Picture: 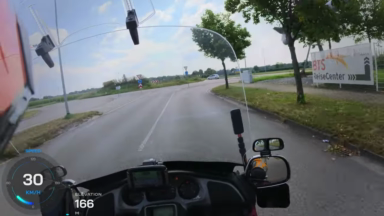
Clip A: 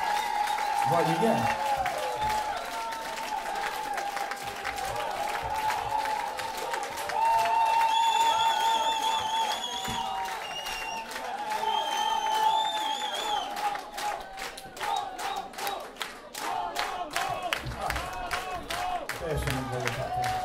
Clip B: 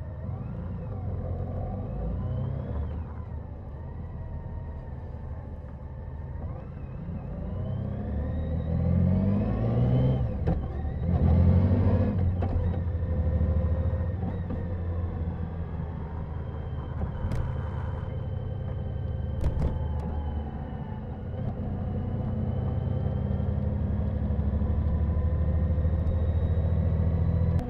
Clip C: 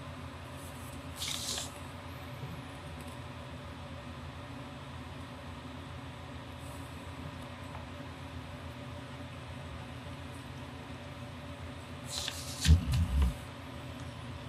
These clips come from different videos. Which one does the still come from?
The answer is B